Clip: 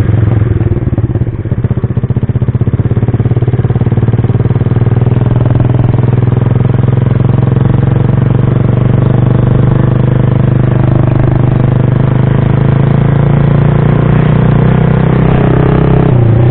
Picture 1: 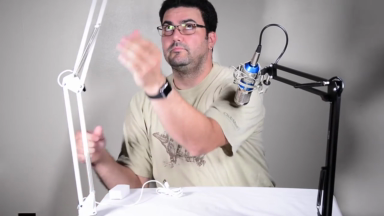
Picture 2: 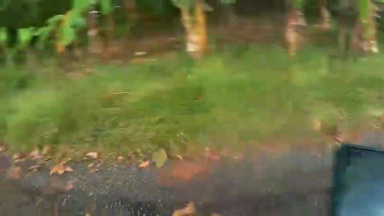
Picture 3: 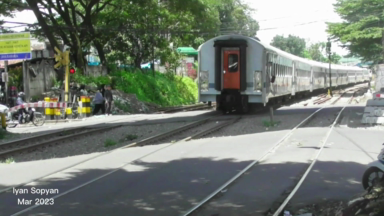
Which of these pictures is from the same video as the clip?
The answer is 2